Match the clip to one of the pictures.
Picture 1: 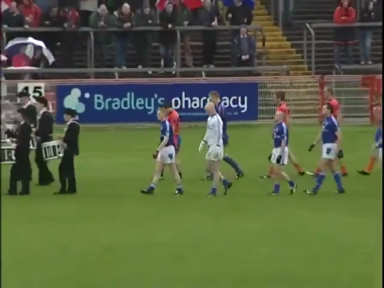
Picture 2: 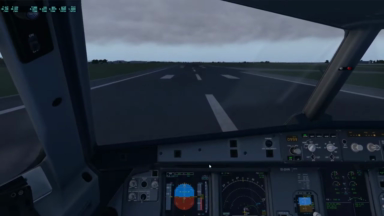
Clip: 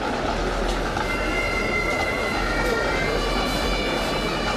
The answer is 1